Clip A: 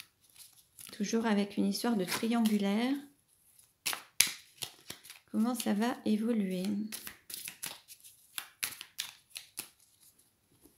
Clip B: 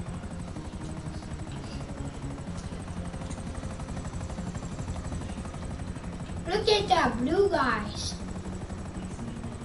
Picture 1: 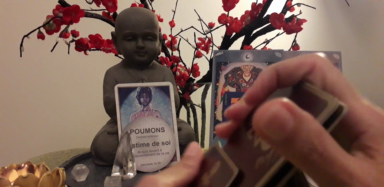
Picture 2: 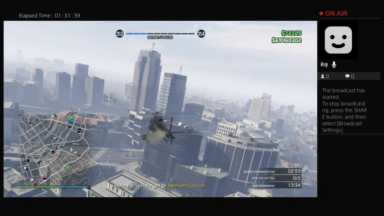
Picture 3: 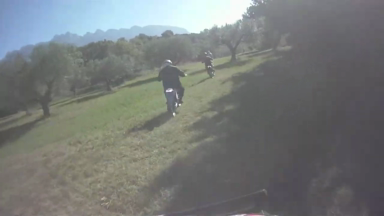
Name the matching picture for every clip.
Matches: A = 1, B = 2